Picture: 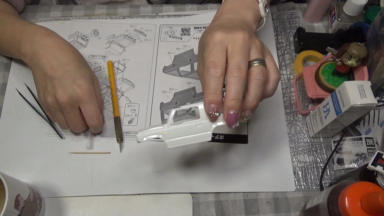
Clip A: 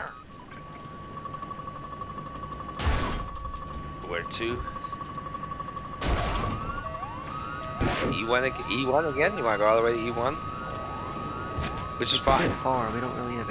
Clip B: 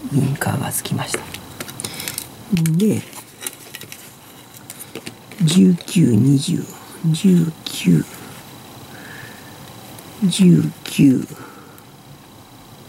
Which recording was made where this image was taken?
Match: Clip B